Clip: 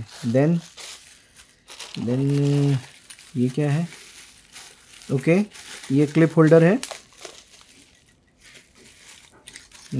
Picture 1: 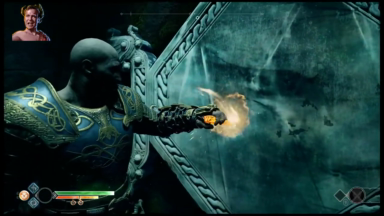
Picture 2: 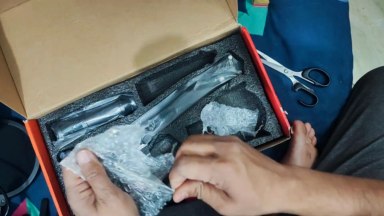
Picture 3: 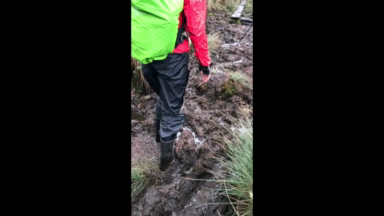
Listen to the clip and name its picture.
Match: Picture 2